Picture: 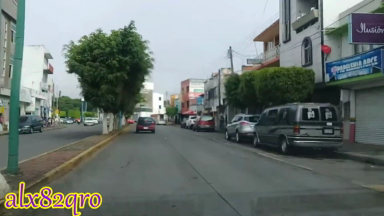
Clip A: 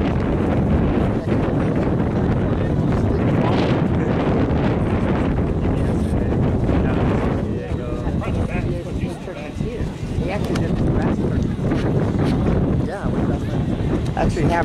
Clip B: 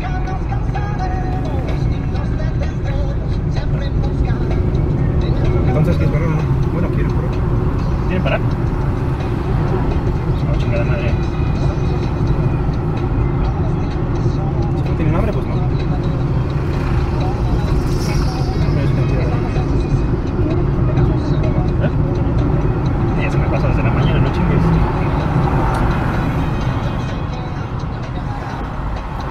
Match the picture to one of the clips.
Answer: B